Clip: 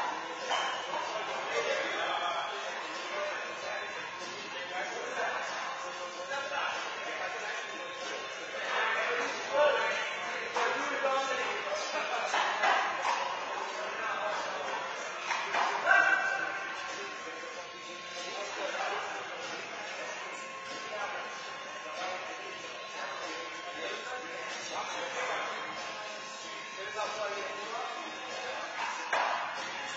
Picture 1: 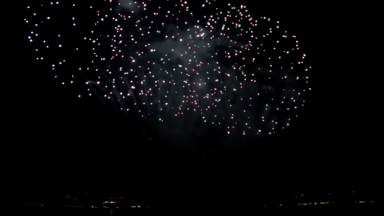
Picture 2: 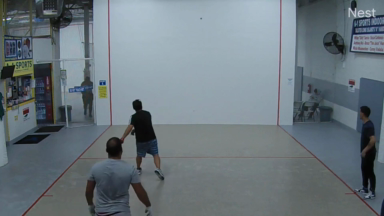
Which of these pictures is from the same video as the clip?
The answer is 2